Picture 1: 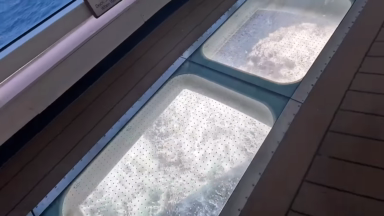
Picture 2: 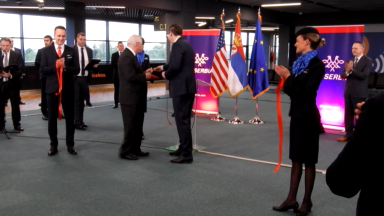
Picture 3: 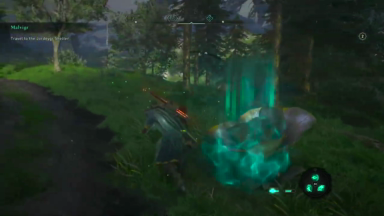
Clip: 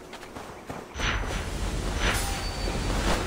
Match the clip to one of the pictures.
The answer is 3